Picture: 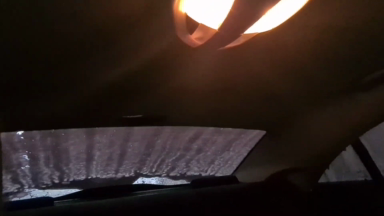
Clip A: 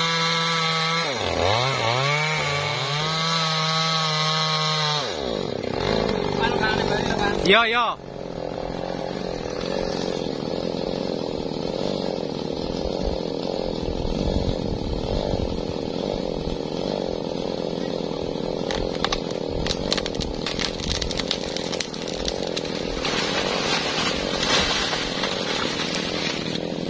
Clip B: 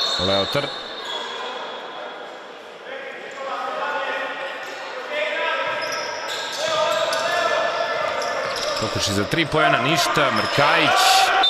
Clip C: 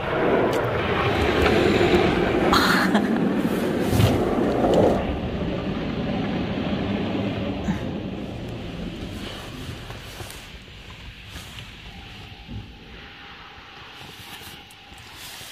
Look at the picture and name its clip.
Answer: C